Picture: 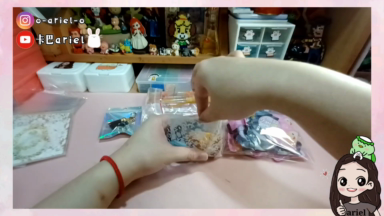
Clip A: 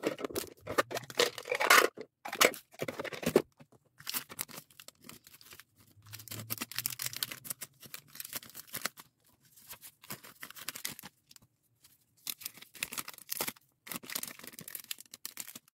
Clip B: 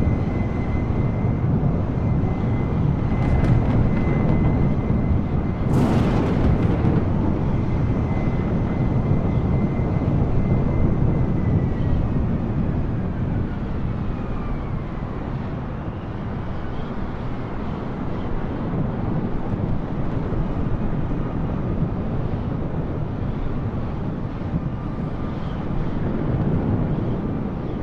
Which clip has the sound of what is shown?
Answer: A